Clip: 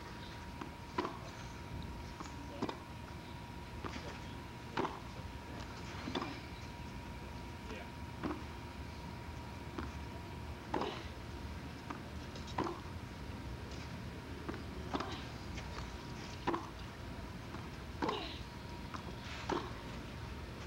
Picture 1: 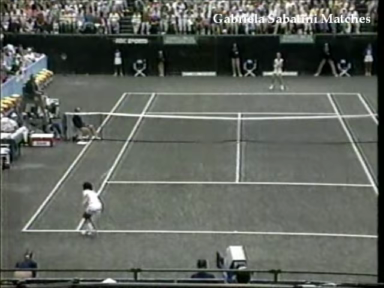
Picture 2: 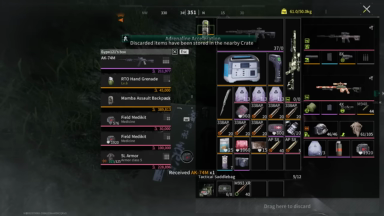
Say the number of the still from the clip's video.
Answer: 1